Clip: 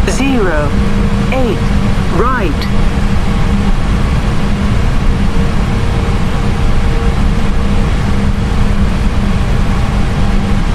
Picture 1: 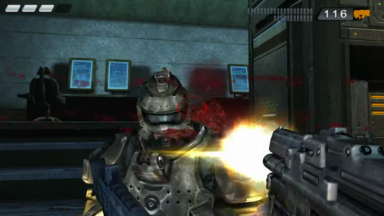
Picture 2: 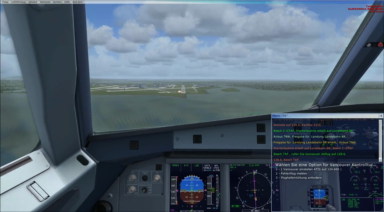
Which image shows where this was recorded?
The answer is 2